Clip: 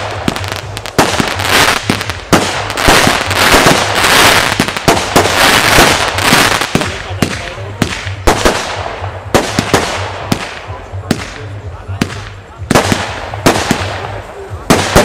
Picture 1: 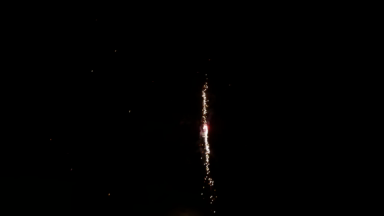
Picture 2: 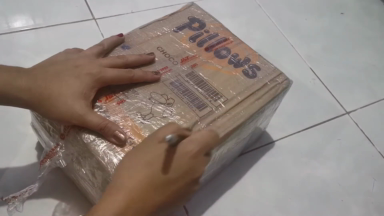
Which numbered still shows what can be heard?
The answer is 1